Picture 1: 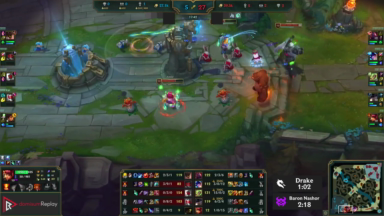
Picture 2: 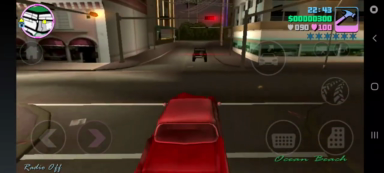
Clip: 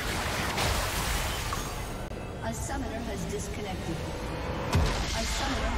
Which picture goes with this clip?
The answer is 1